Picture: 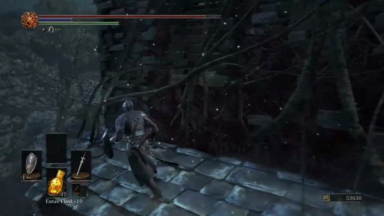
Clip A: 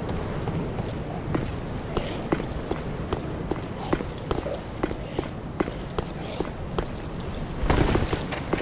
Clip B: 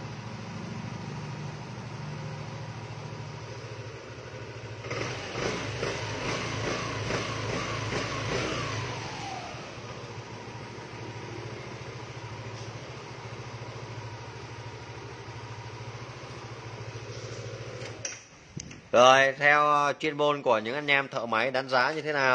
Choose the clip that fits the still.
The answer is A